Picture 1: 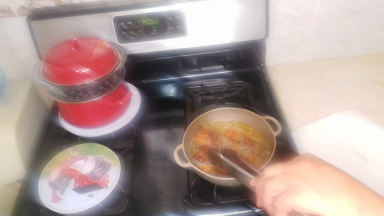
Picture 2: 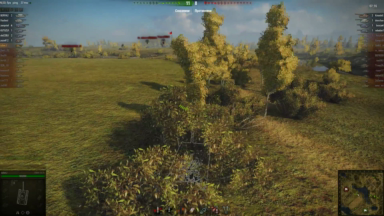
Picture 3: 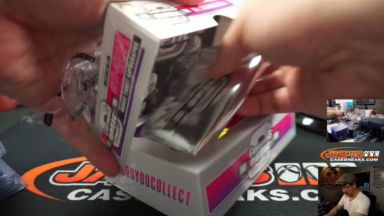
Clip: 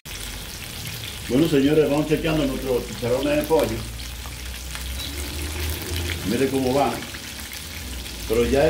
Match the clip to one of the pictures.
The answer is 1